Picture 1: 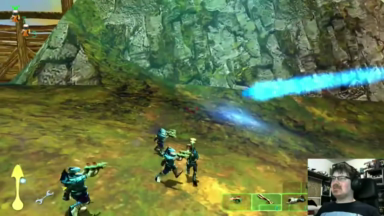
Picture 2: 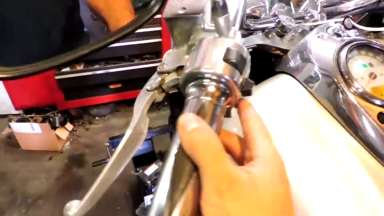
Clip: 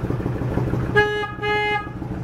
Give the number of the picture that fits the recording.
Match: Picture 2